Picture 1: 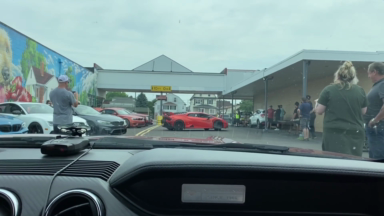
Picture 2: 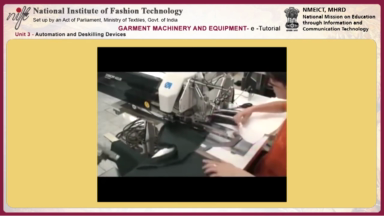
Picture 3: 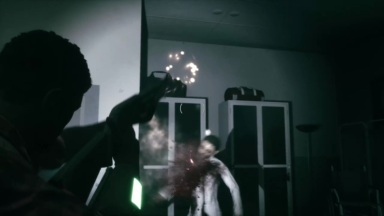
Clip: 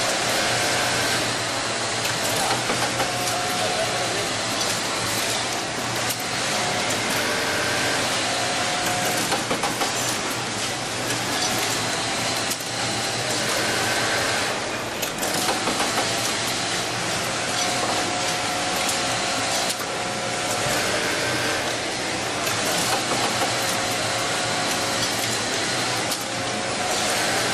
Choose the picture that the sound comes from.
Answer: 2